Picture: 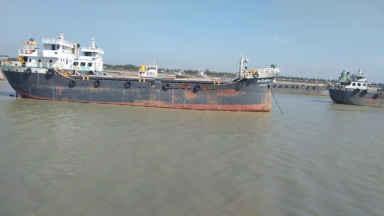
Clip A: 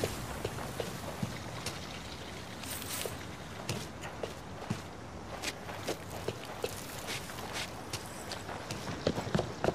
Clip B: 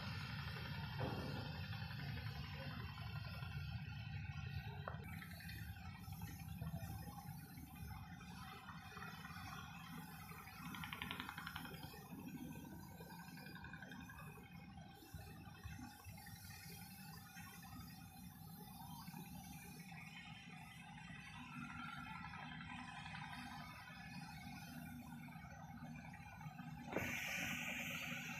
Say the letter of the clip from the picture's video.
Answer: B